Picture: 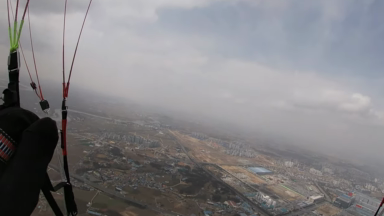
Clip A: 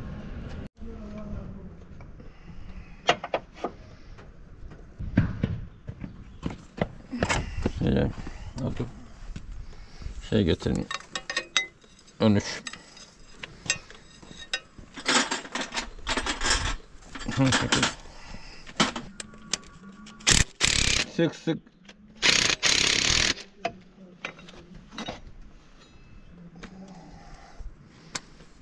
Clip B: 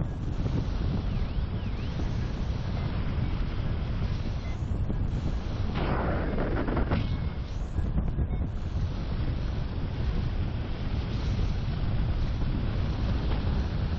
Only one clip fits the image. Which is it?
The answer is B